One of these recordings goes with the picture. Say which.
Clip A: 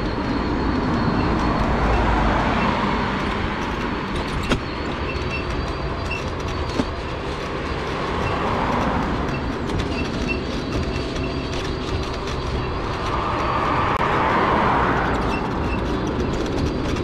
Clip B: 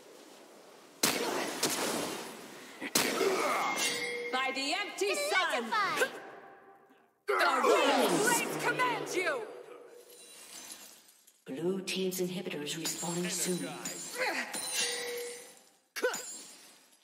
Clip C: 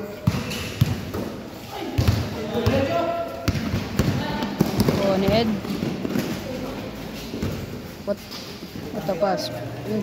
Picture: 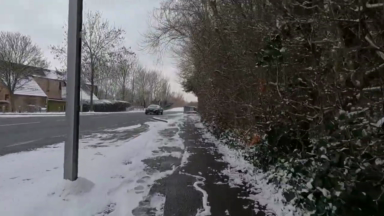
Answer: A